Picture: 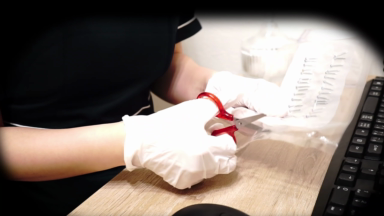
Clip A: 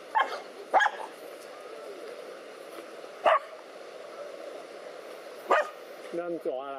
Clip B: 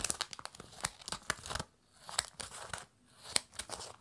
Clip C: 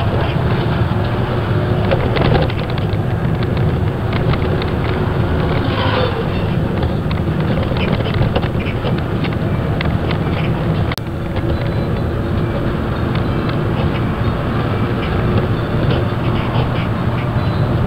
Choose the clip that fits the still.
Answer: B